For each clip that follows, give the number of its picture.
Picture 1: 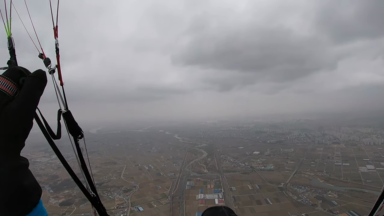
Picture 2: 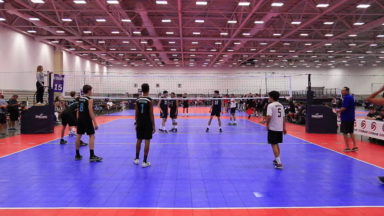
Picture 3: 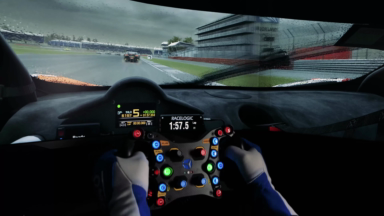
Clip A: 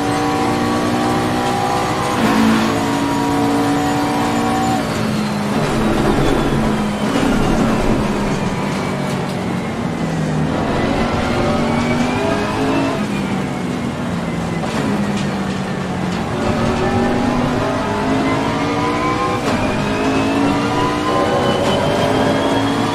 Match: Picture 3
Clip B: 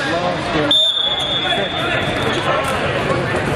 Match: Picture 2